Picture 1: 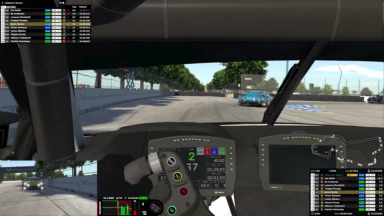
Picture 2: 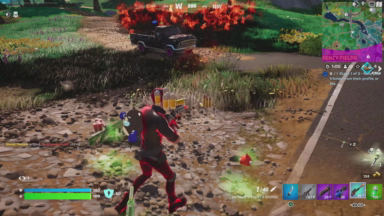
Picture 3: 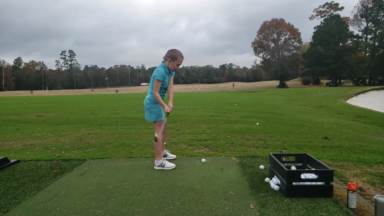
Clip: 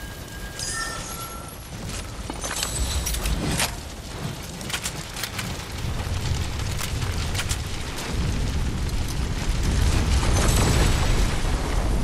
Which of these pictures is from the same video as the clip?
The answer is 2